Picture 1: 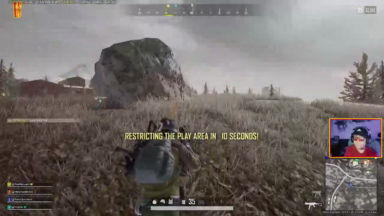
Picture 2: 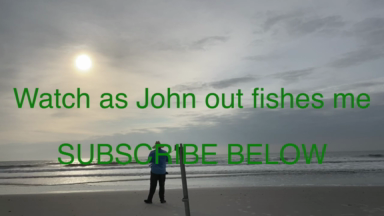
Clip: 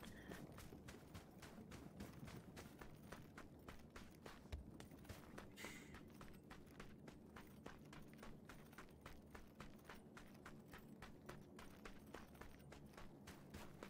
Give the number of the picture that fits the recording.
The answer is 1